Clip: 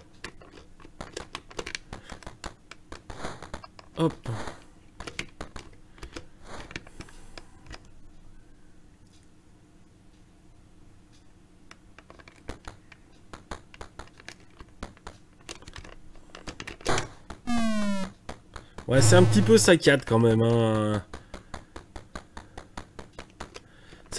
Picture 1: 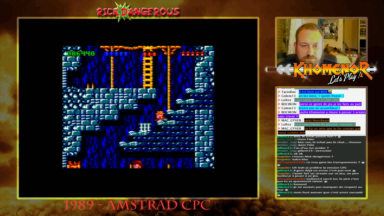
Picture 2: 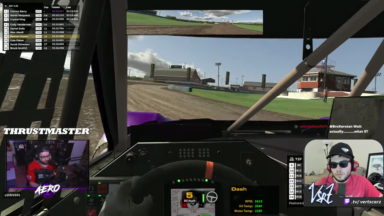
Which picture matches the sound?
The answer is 1